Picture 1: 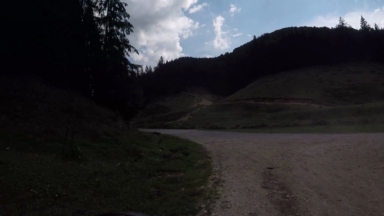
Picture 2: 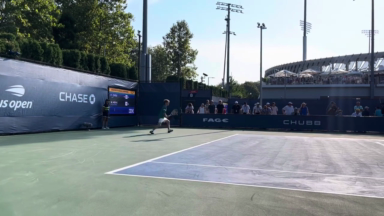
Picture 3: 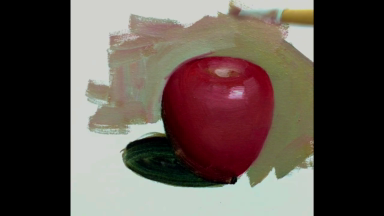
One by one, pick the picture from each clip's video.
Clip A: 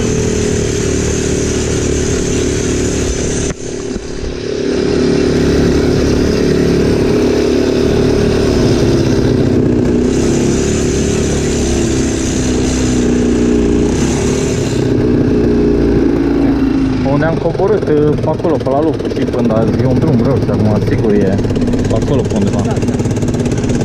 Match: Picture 1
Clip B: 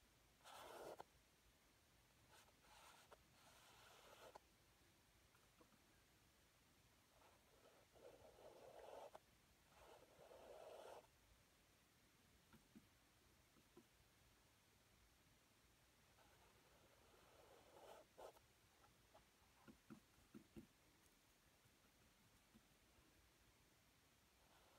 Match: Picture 3